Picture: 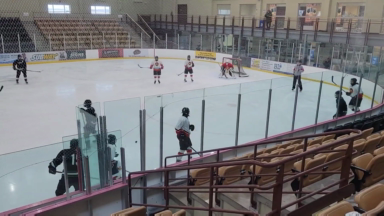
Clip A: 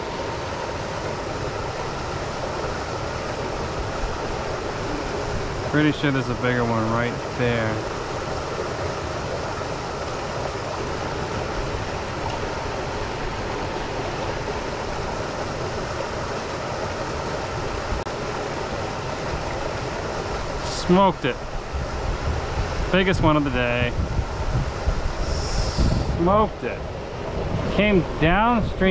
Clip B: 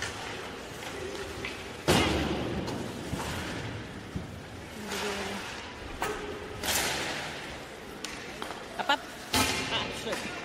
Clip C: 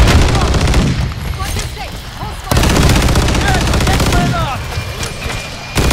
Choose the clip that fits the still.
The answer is B